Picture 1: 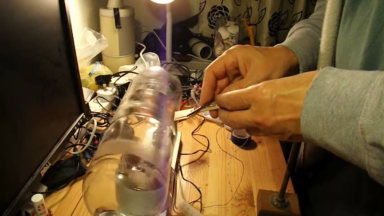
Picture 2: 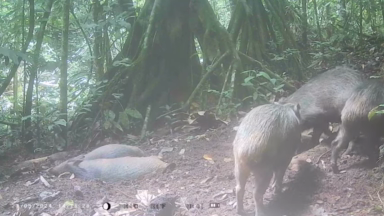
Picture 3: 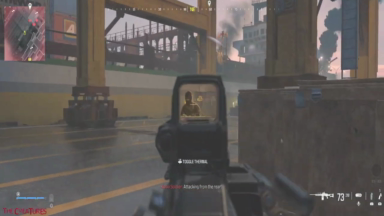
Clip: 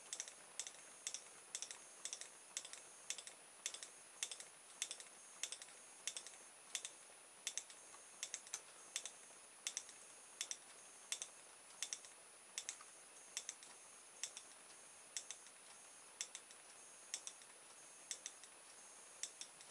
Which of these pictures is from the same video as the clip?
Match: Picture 1